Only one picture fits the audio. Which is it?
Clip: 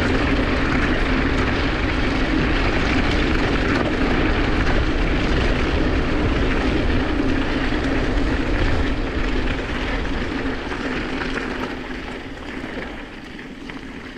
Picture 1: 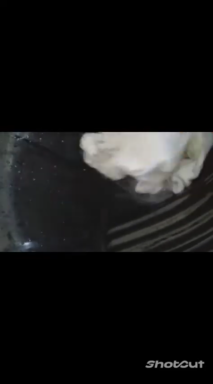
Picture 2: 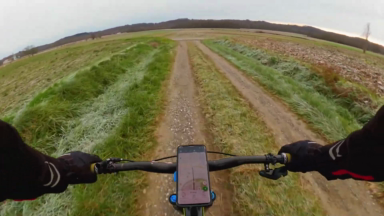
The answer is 2